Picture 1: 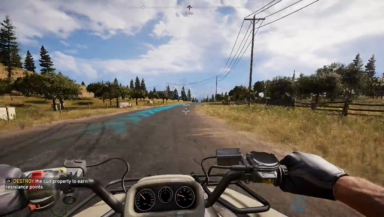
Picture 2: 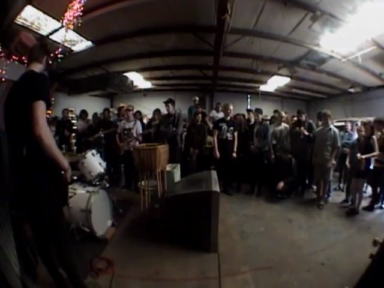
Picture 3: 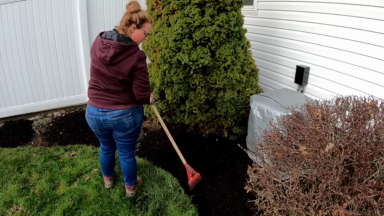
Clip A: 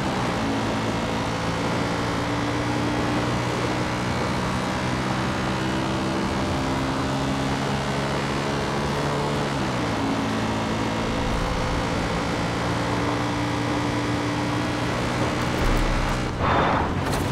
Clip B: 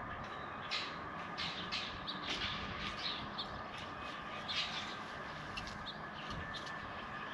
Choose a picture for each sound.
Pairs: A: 1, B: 3